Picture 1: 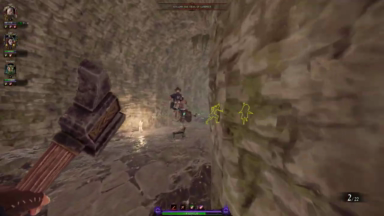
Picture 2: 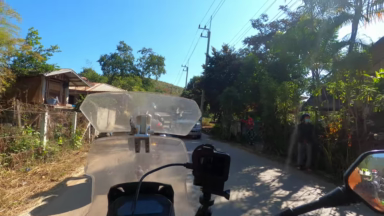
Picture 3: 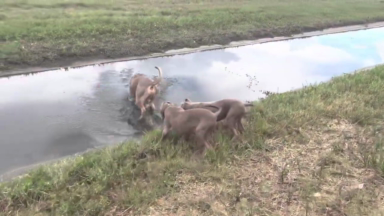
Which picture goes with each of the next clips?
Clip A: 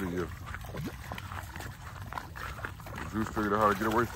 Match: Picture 3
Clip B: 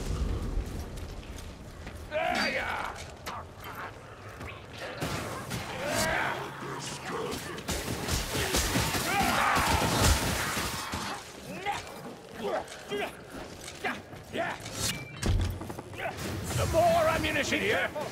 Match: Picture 1